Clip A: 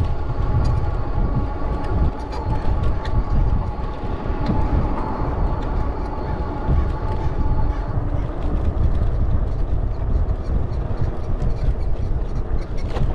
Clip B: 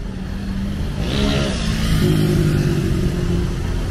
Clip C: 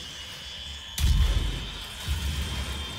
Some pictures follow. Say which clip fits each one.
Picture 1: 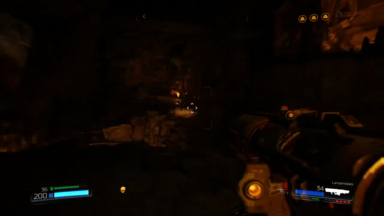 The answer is C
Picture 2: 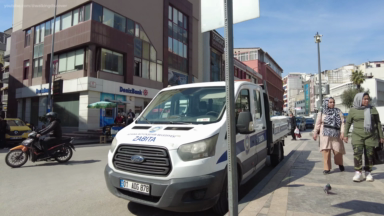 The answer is B